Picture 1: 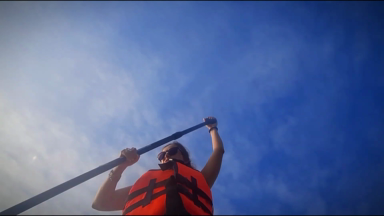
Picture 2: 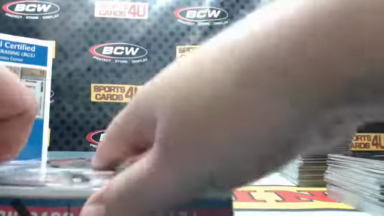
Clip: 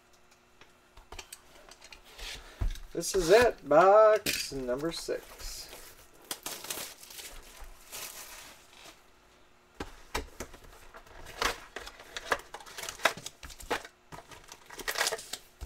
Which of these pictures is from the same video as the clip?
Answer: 2